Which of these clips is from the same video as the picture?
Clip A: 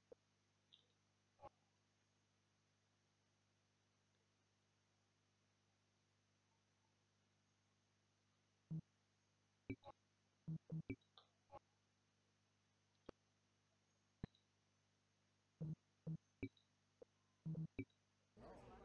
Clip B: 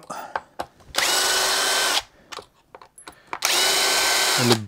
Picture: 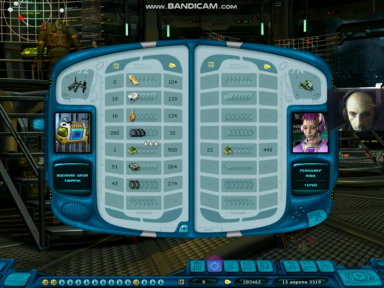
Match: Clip A